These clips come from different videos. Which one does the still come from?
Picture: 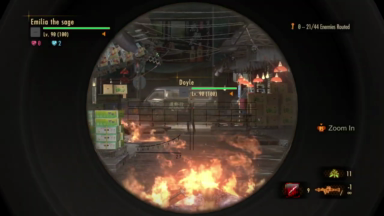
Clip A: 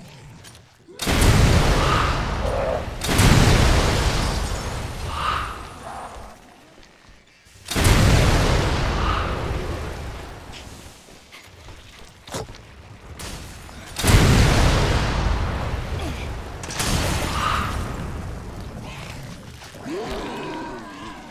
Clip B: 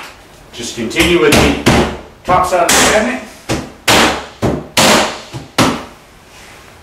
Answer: A